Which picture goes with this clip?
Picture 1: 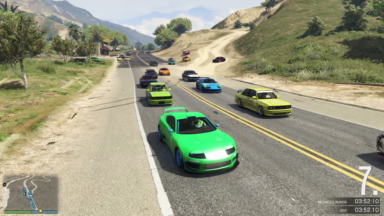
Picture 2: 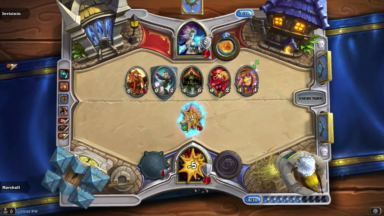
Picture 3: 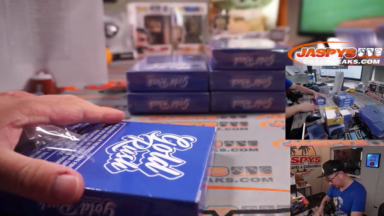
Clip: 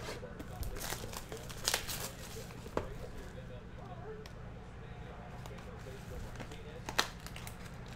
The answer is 3